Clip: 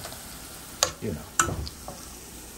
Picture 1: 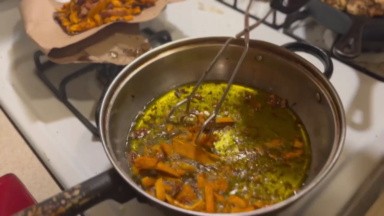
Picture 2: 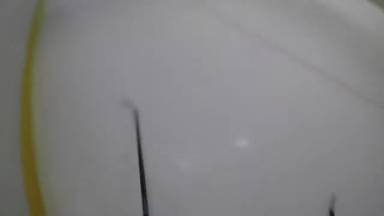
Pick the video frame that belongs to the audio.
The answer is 1